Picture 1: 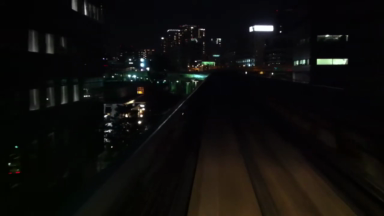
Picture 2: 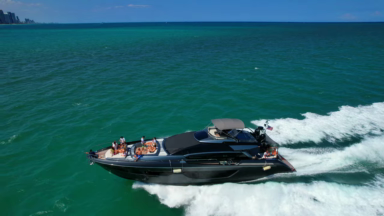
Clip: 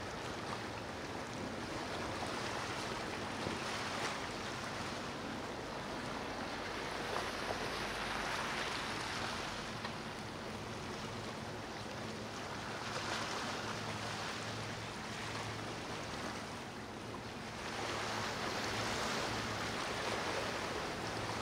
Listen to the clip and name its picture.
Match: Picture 2